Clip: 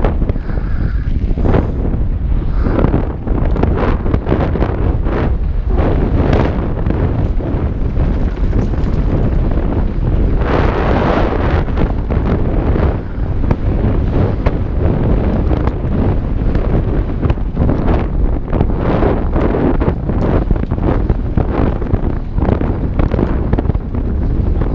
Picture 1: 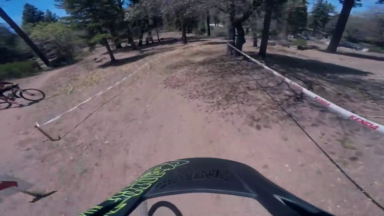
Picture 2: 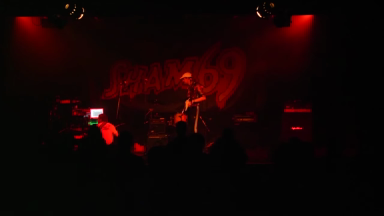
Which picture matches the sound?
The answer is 1